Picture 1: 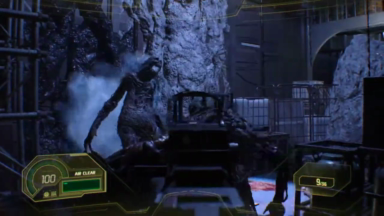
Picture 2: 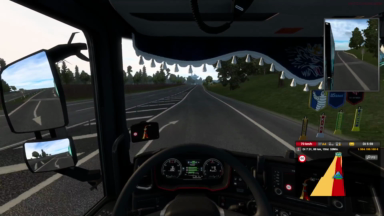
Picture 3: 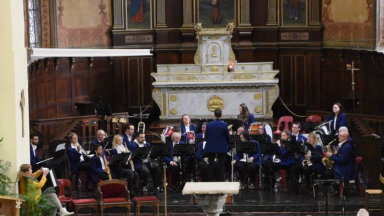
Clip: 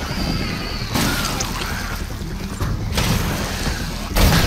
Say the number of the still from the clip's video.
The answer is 1